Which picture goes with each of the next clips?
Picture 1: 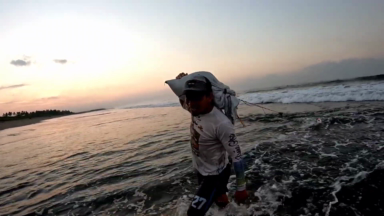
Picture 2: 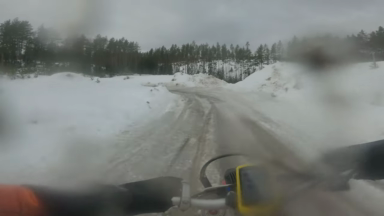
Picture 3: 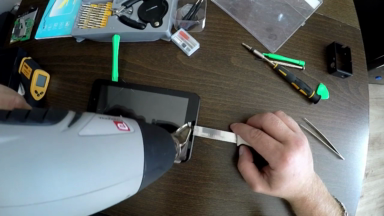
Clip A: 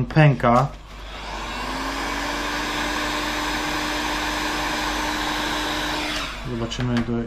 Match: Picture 3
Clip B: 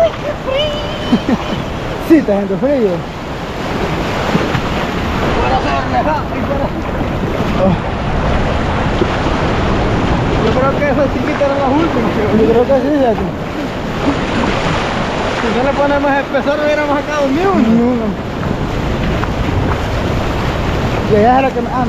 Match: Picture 1